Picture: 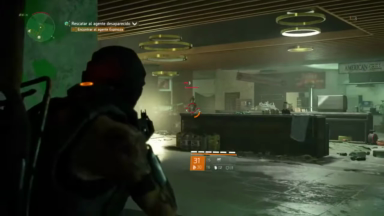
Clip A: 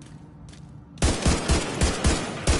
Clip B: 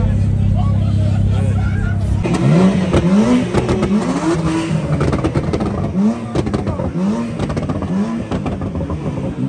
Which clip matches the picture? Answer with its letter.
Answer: A